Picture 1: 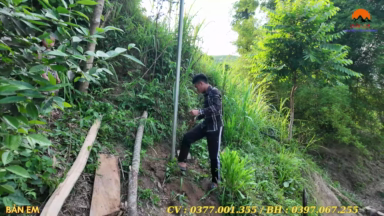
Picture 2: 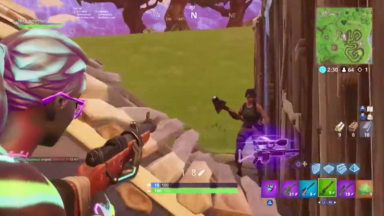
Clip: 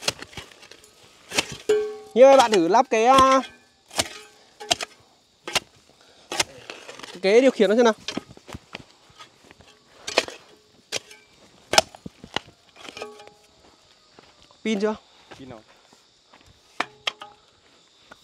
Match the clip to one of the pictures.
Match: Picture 1